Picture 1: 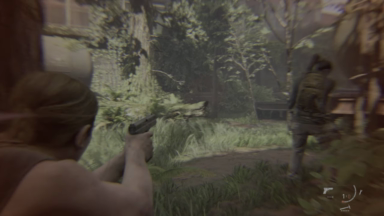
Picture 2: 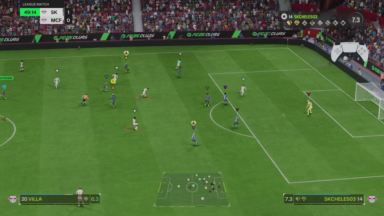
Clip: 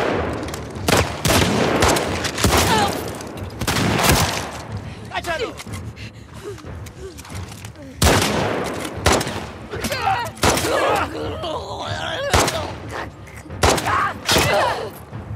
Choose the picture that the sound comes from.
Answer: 1